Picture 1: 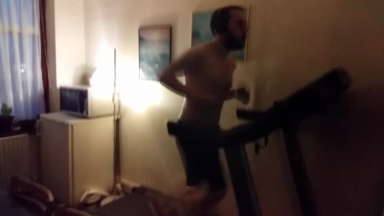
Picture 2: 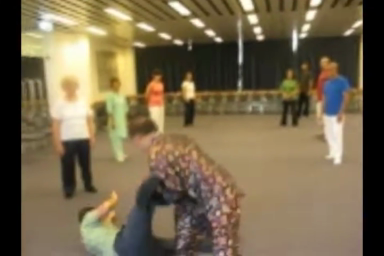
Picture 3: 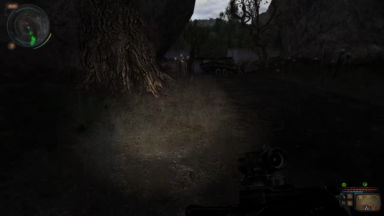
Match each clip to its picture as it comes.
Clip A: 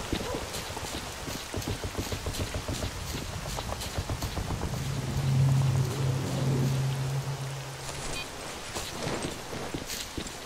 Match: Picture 3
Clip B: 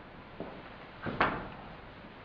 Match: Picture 2